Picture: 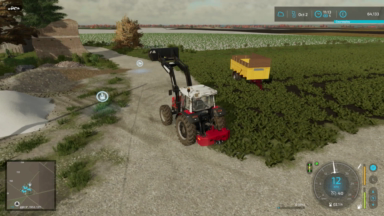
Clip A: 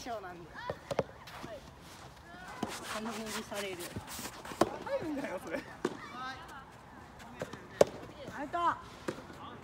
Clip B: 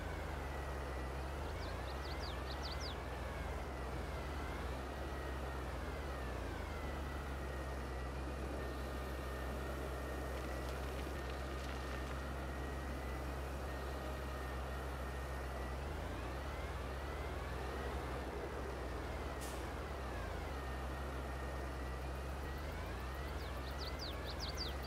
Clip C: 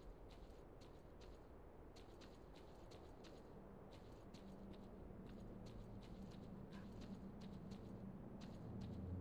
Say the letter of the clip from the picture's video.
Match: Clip B